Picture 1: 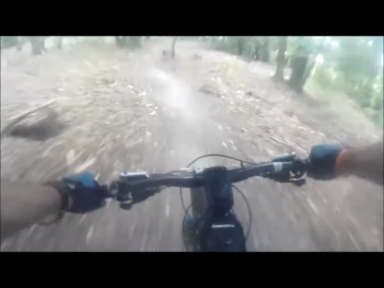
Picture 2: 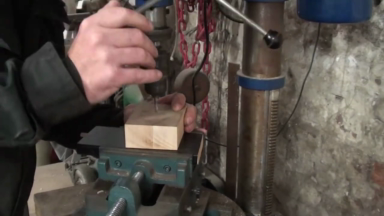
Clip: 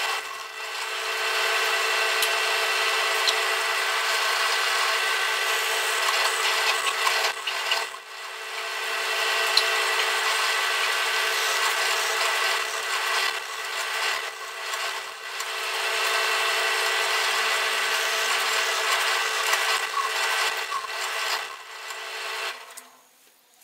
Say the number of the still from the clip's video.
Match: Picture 2